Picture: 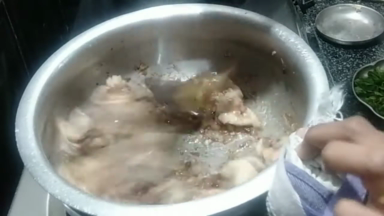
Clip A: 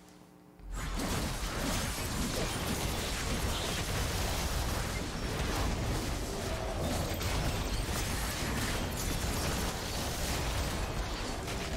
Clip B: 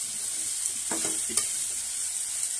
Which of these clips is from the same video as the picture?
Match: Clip B